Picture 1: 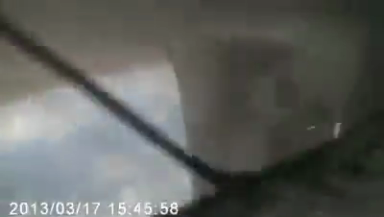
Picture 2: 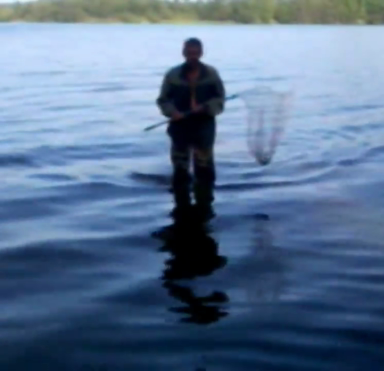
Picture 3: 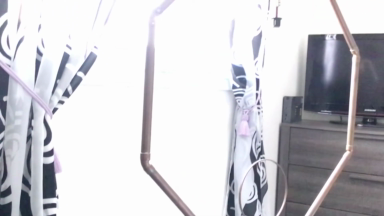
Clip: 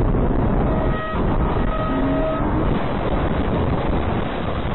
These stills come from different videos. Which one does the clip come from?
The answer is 1